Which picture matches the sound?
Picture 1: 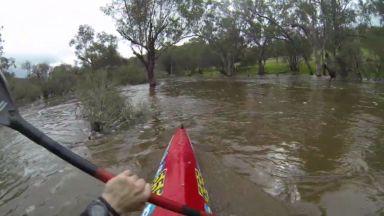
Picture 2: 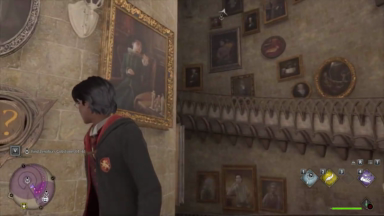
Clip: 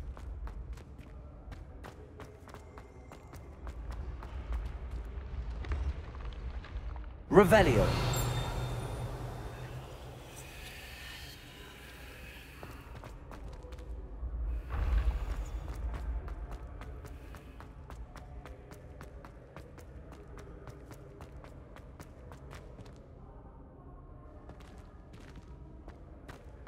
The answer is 2